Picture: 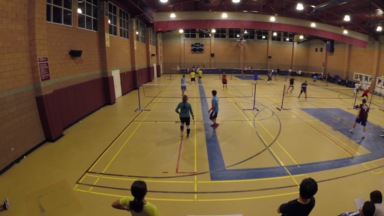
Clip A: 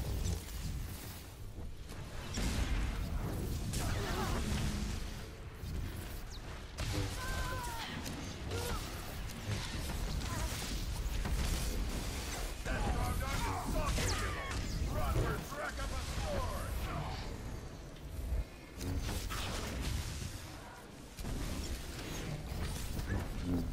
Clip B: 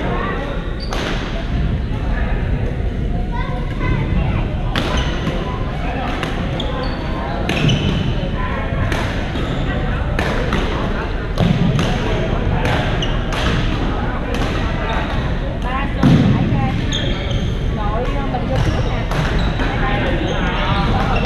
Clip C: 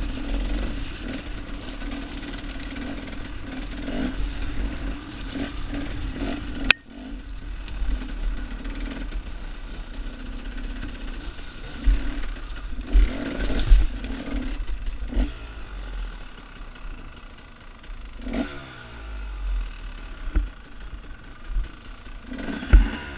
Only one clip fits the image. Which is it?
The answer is B